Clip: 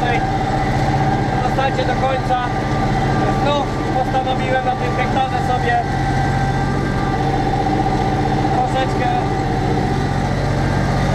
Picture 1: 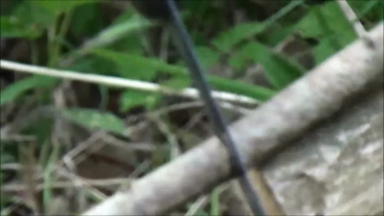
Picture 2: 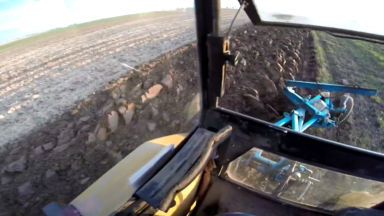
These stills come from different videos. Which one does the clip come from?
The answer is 2